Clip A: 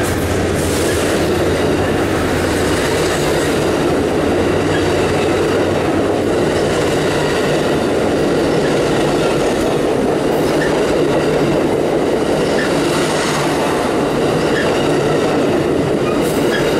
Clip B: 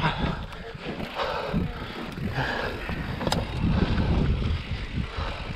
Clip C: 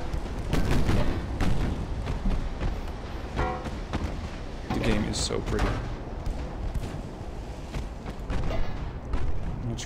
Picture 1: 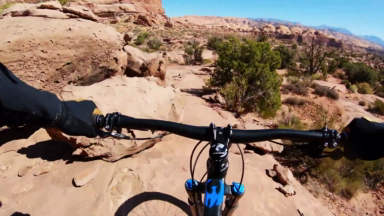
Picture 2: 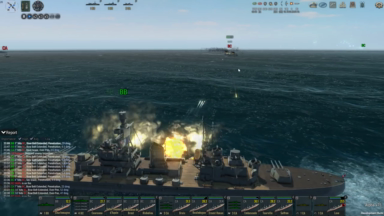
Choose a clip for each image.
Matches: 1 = B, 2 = C